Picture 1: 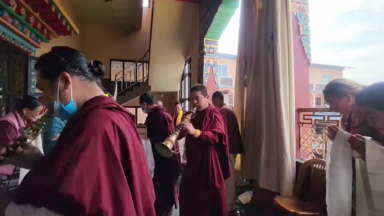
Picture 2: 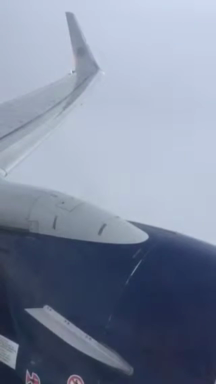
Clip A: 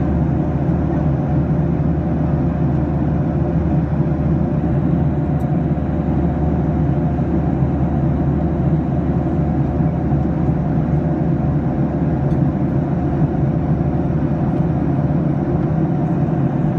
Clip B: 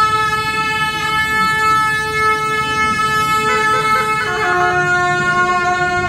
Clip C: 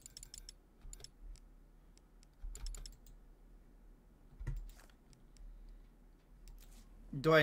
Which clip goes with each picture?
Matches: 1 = B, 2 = A